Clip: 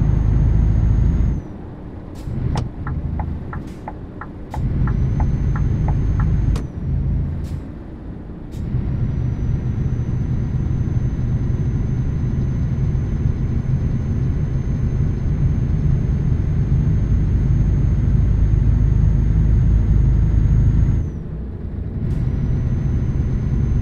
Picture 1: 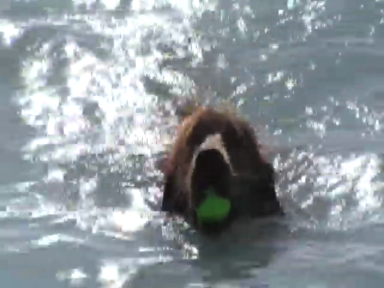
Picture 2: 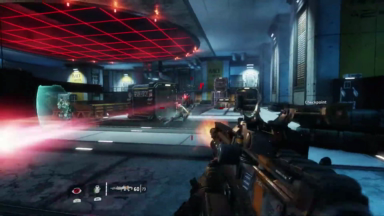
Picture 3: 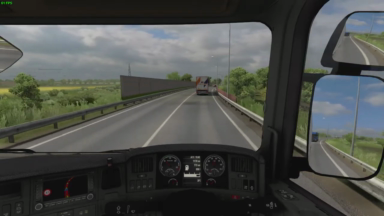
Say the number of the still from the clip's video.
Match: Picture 3